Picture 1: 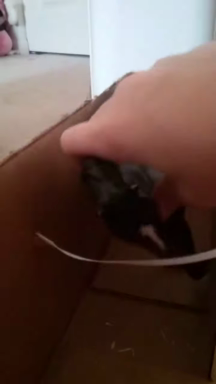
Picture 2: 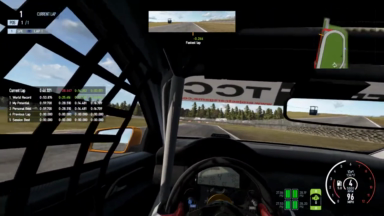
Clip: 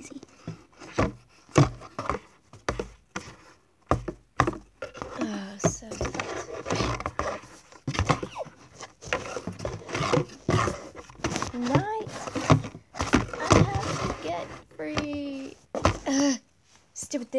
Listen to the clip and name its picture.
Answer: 1